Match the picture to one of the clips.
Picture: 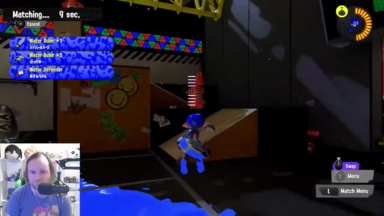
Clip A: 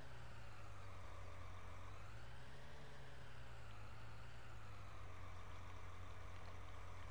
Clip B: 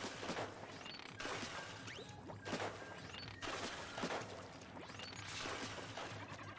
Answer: B